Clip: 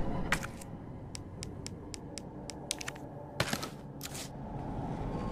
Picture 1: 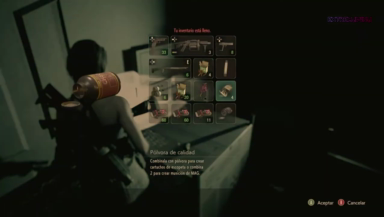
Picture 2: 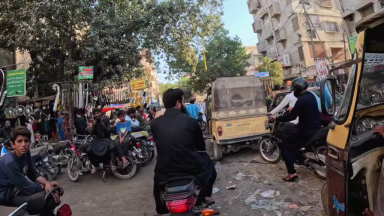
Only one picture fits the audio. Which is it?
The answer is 1